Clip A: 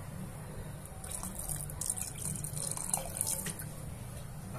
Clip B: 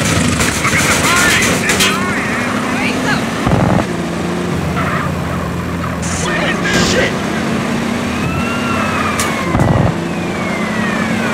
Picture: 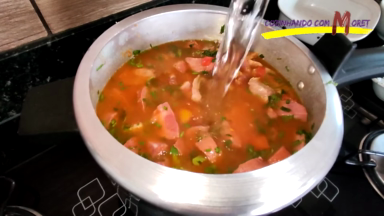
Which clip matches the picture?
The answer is A